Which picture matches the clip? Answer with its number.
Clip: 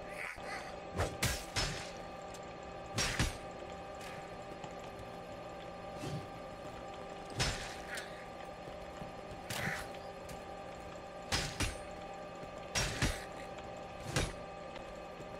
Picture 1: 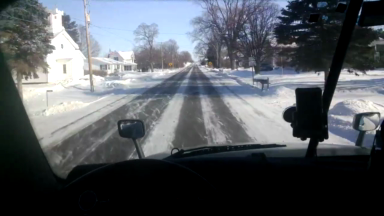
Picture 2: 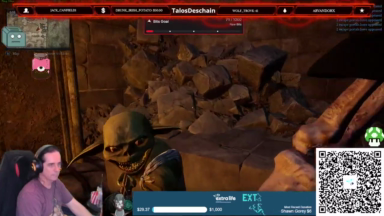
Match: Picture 2